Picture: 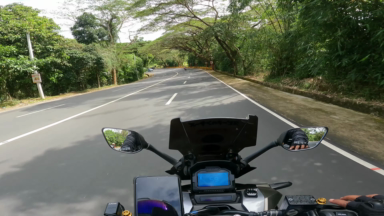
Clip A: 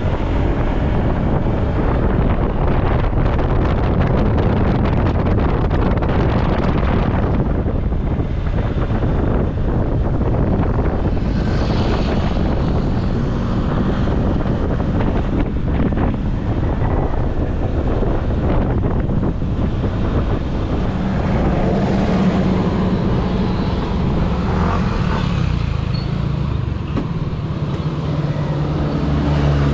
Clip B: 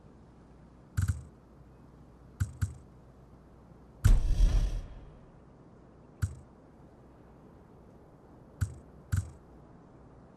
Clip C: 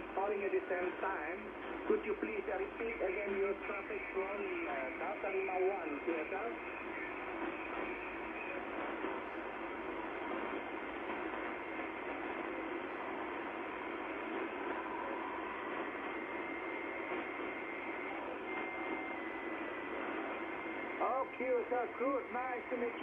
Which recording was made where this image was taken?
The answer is A